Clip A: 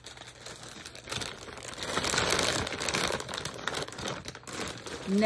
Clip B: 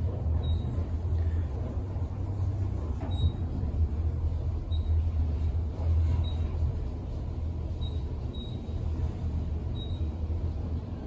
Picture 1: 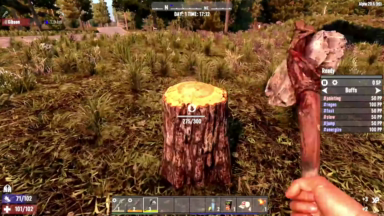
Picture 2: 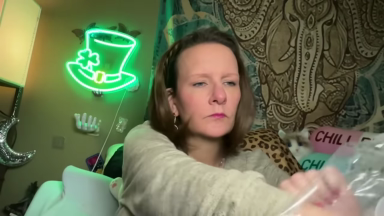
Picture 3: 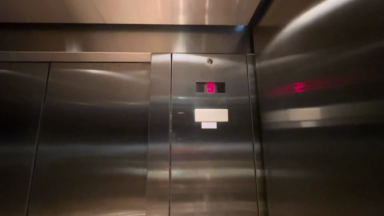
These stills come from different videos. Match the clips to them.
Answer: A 2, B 3